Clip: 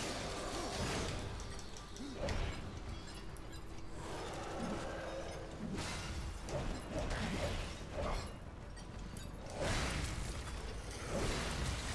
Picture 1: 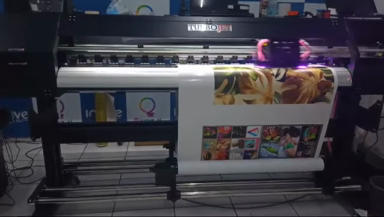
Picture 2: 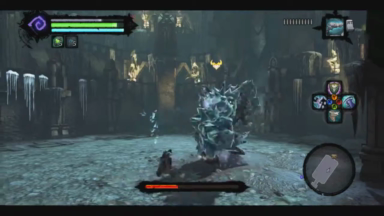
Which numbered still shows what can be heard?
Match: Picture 2